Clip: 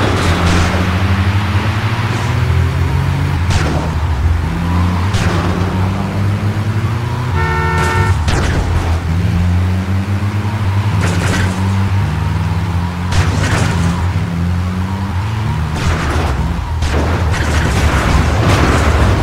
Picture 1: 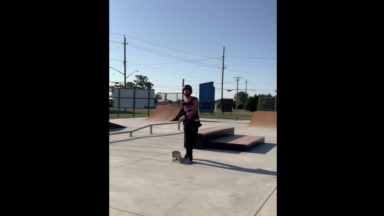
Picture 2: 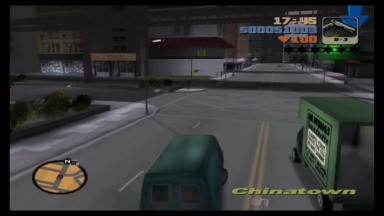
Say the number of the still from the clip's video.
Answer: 2